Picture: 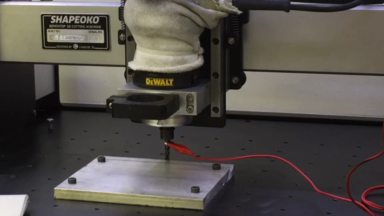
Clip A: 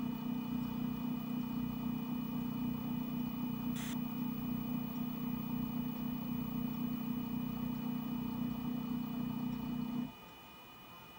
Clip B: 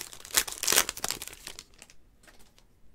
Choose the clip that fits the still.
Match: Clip A